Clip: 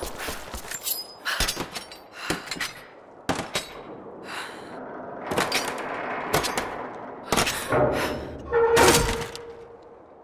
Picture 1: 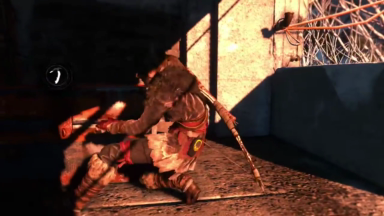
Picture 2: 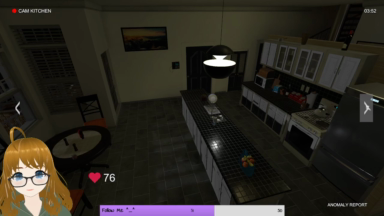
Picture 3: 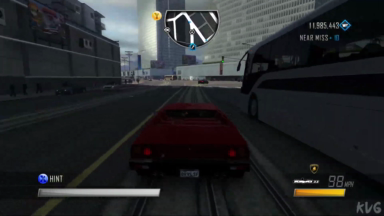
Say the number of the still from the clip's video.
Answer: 1